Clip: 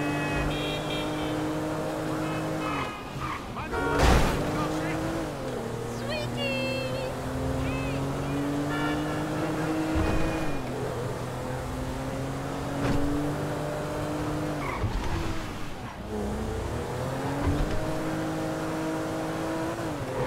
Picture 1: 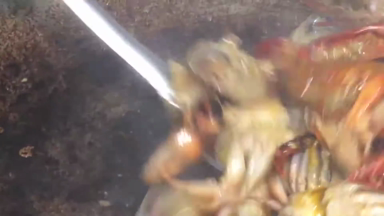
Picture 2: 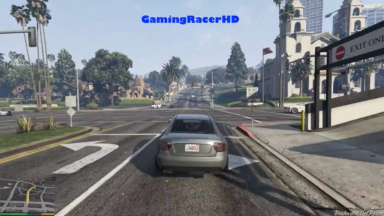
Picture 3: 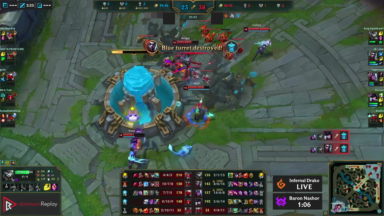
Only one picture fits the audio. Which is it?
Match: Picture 2